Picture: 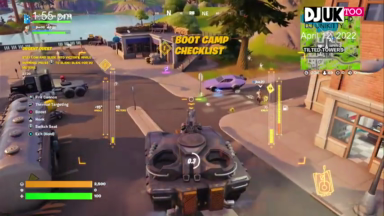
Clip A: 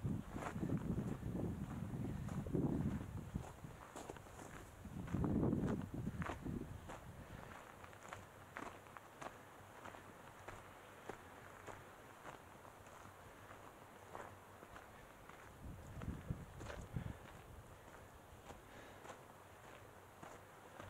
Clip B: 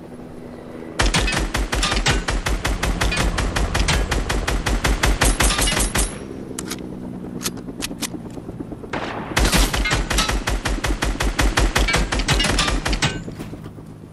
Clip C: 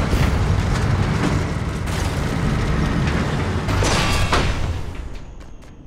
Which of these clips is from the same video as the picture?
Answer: C